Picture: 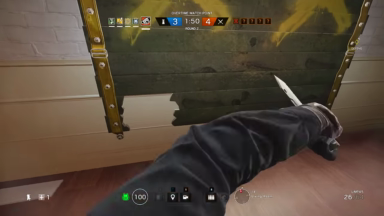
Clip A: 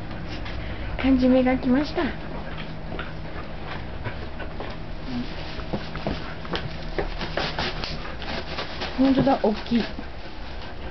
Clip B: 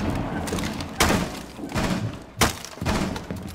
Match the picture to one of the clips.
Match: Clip B